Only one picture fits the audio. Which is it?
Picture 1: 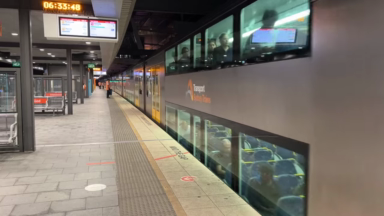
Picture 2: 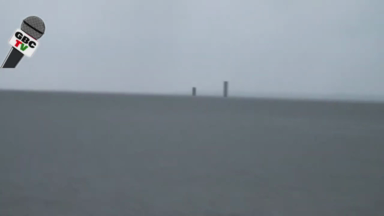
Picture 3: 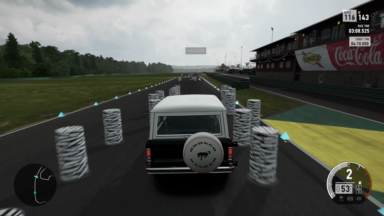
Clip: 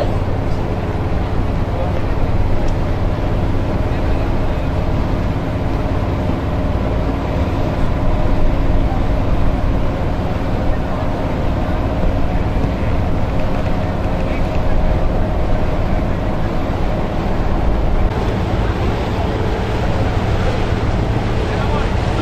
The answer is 2